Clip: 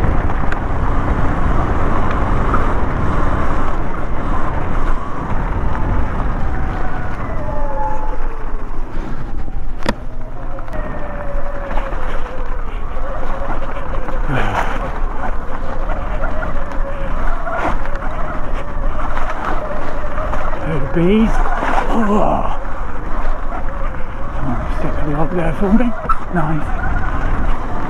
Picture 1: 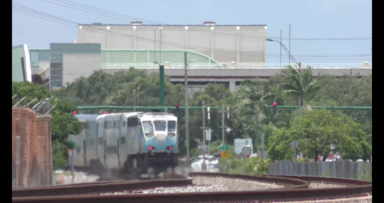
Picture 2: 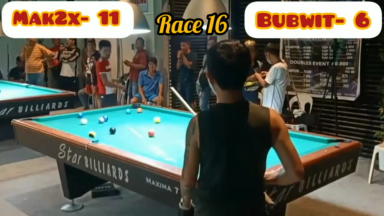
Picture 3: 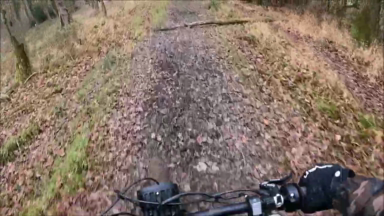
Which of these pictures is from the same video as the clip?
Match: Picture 3